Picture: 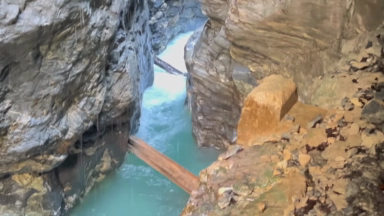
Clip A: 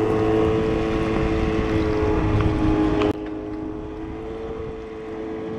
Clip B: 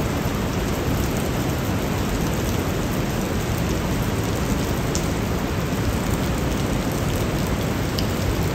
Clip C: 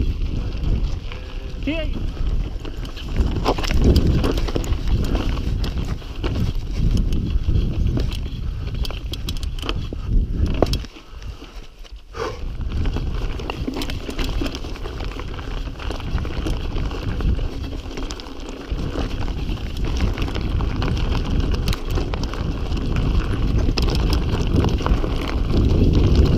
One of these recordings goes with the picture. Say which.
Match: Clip B